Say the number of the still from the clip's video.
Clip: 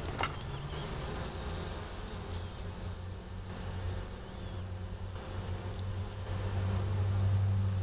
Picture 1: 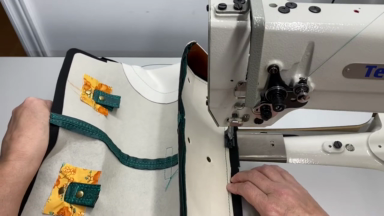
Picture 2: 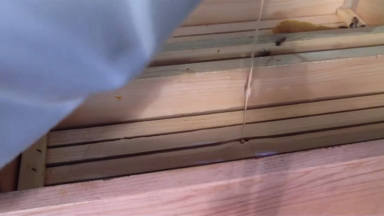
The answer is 2